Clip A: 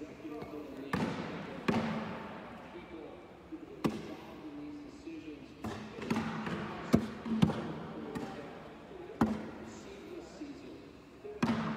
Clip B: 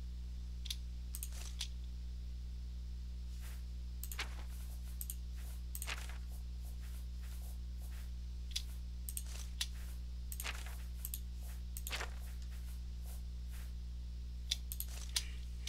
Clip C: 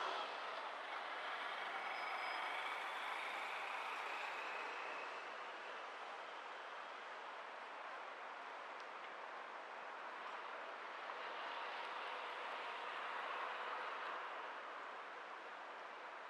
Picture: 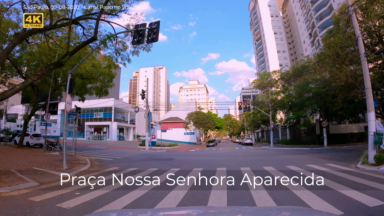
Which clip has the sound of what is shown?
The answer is C